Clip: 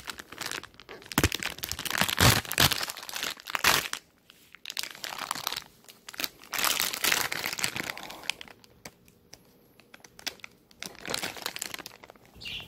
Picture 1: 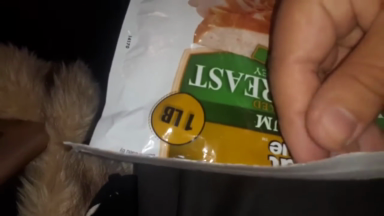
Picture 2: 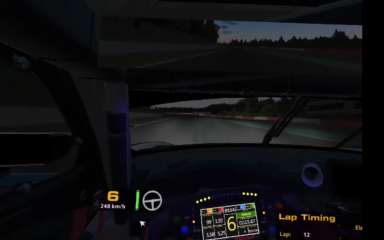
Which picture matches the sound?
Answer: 1